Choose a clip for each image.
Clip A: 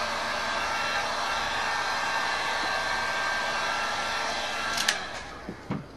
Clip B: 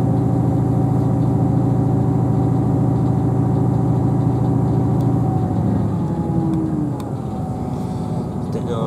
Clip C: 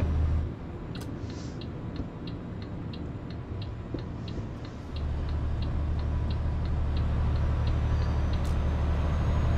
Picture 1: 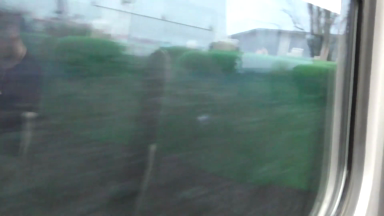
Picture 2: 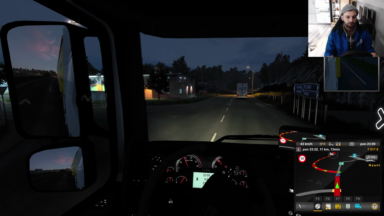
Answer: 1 B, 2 C